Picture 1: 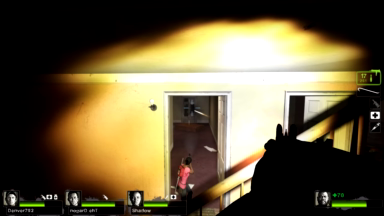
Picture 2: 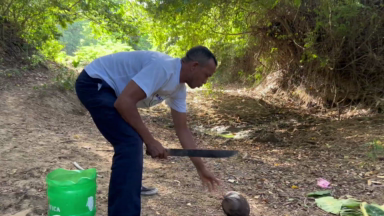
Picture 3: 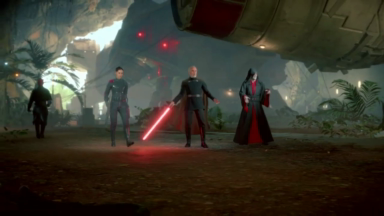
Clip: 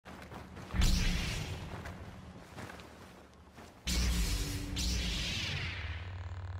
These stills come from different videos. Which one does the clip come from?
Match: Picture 3